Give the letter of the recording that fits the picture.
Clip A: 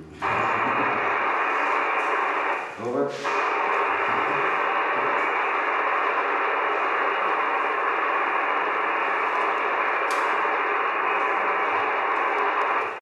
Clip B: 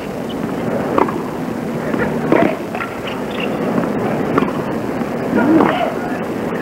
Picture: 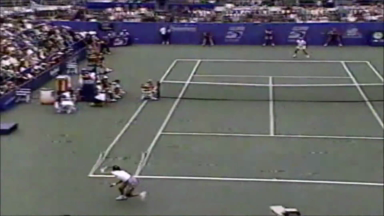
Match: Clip B